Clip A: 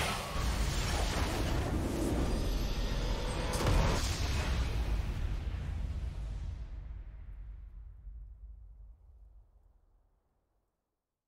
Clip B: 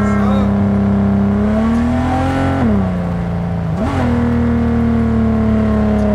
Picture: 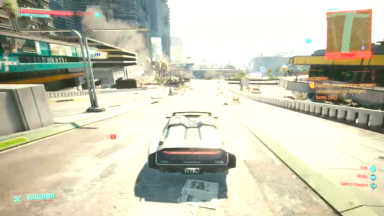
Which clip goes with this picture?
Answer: B